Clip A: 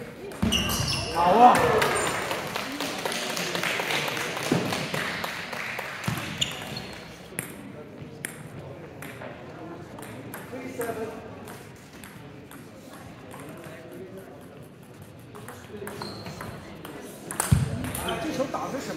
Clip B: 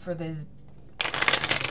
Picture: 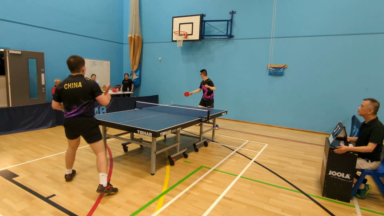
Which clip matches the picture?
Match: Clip A